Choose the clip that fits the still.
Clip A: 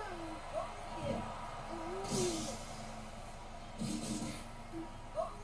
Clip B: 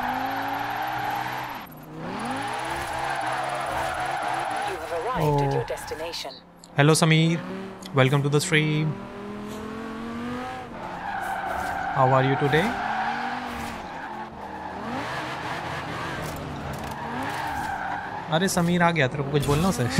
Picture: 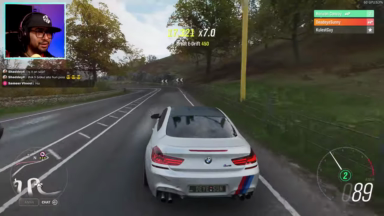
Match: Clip B